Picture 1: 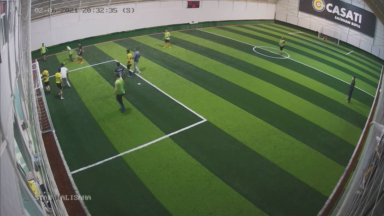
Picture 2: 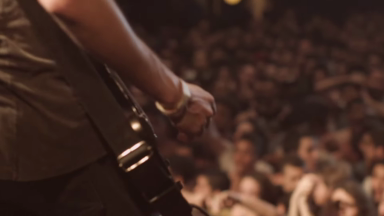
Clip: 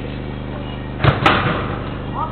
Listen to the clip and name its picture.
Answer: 1